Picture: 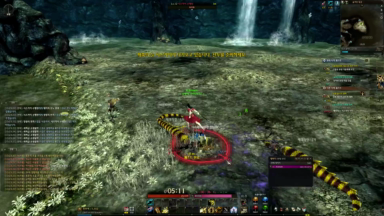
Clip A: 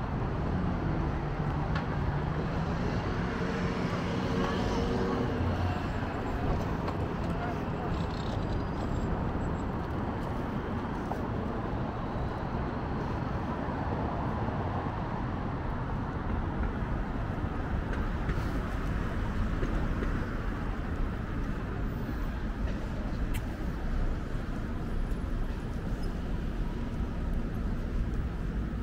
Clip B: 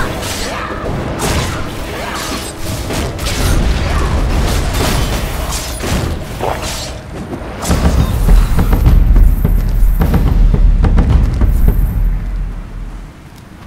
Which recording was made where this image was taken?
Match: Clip B